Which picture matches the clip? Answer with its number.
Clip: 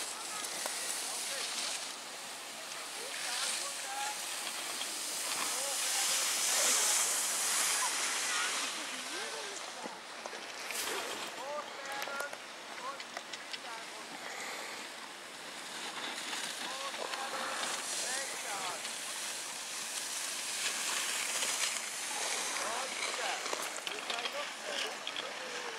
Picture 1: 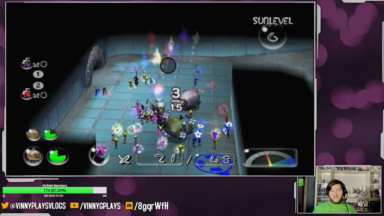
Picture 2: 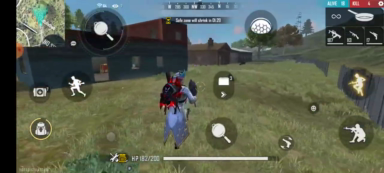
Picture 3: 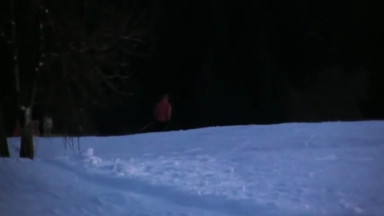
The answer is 3